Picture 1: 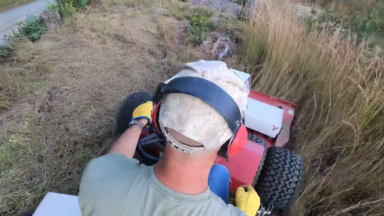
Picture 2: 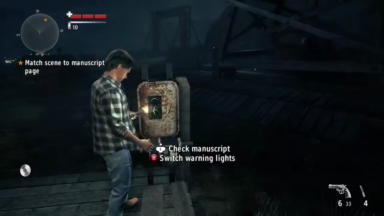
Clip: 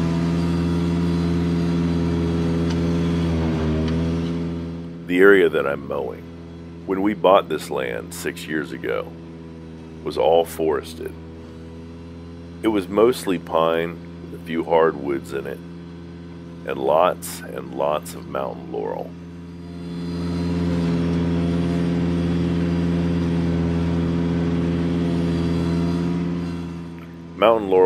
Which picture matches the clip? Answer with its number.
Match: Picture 1